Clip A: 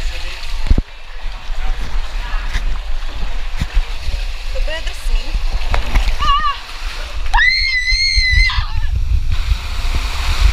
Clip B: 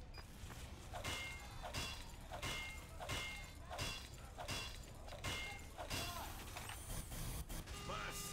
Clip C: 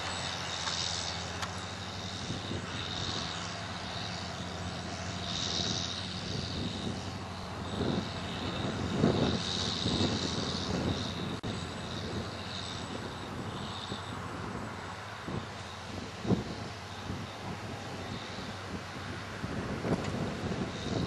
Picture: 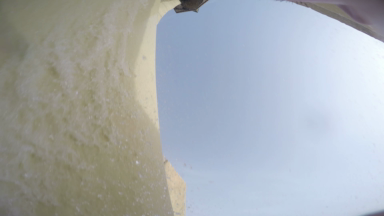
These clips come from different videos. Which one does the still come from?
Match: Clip A